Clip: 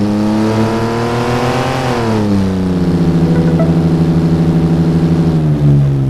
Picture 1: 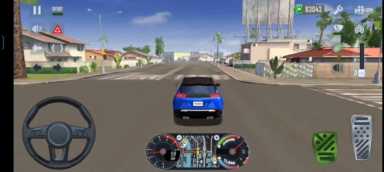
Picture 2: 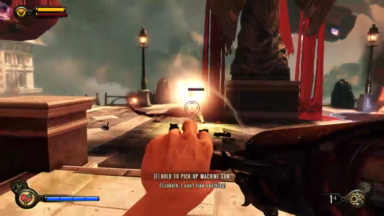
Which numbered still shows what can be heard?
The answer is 1